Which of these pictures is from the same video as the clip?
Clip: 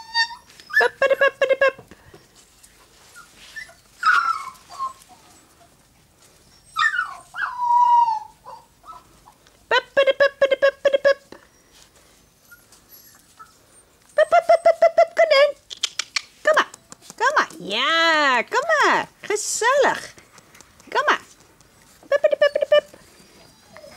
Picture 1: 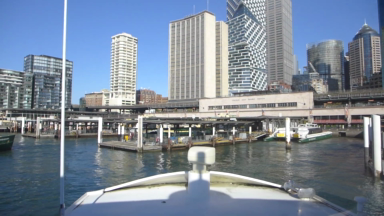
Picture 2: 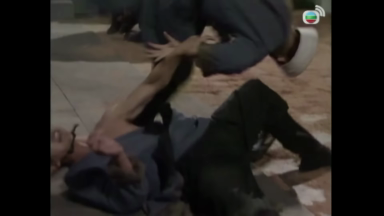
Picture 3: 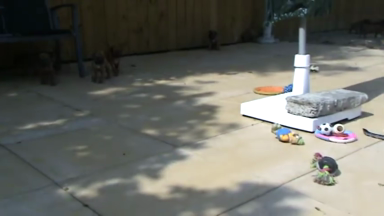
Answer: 3